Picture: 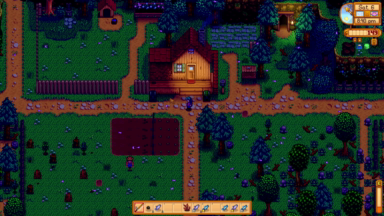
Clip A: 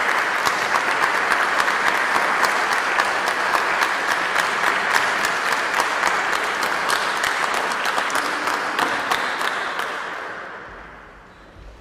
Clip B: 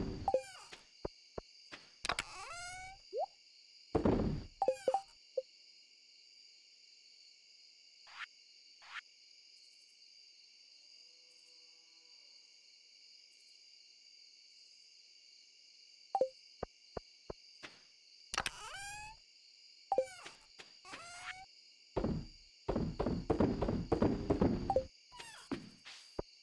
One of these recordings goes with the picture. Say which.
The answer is B